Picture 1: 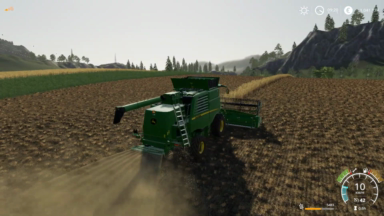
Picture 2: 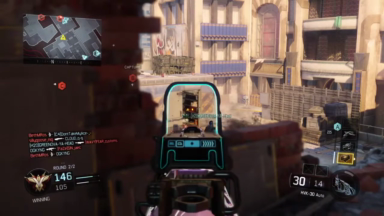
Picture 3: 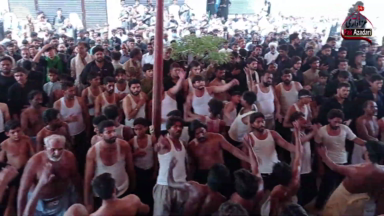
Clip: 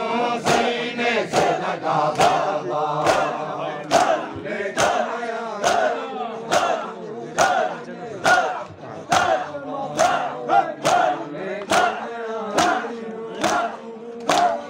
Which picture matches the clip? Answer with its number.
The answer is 3